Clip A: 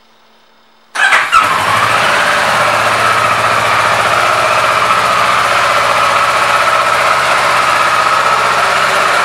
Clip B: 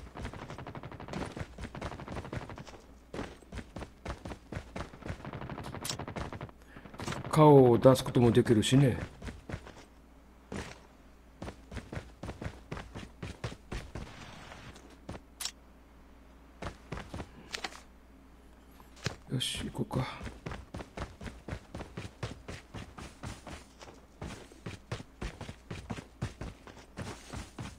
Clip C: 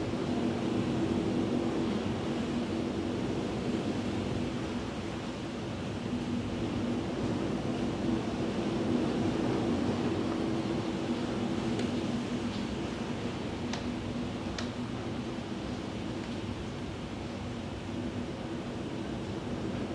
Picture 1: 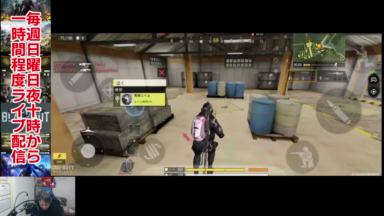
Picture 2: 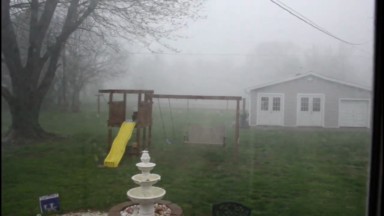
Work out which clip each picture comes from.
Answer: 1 B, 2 C